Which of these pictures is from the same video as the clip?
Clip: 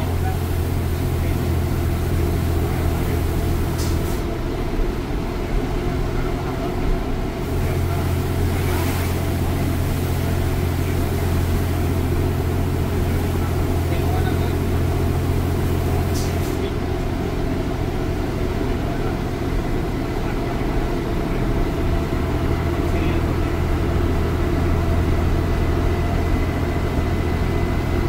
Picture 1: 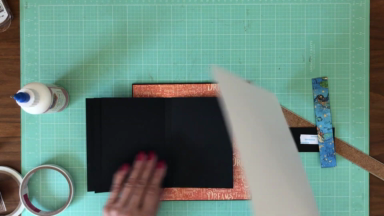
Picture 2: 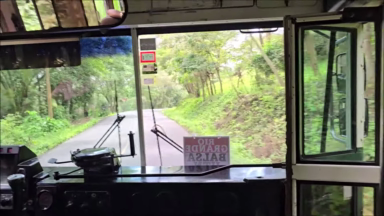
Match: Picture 2